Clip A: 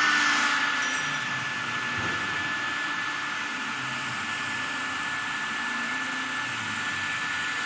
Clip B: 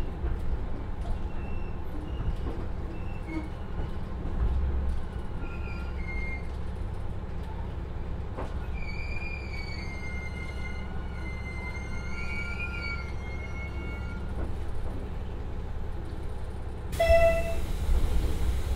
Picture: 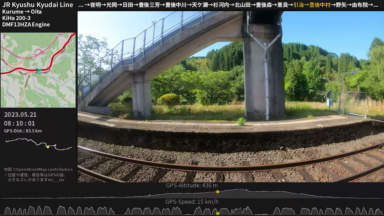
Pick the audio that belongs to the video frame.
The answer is B